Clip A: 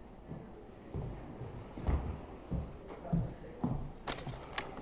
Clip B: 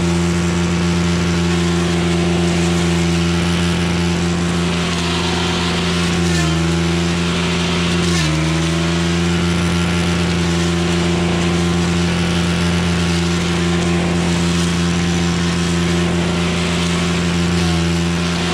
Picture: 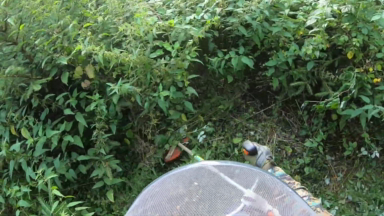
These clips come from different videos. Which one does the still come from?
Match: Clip B